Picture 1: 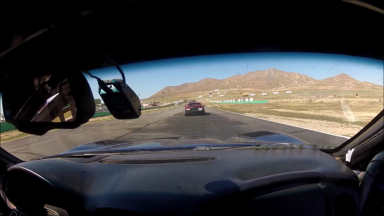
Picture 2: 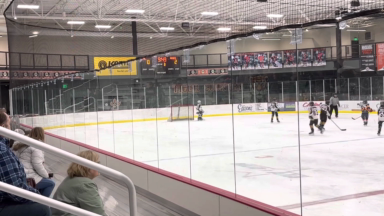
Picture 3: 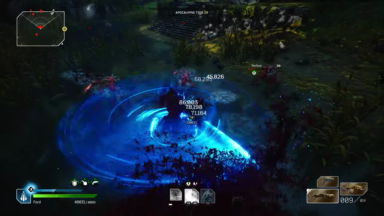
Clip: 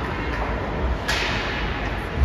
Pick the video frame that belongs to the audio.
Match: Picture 2